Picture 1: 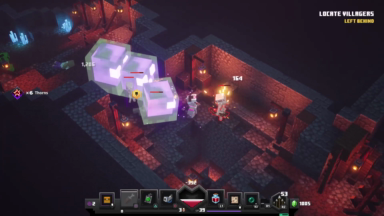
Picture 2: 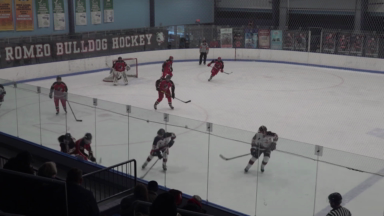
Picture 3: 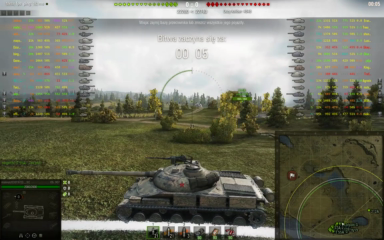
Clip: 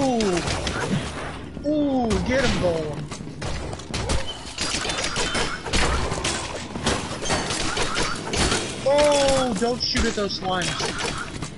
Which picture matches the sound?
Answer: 1